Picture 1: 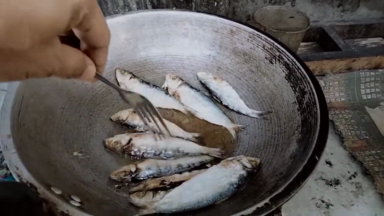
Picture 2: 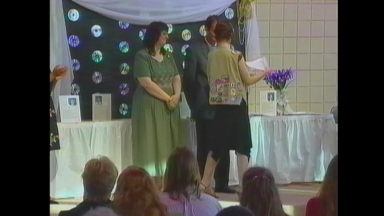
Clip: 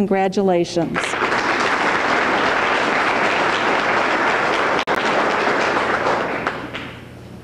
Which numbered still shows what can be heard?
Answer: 2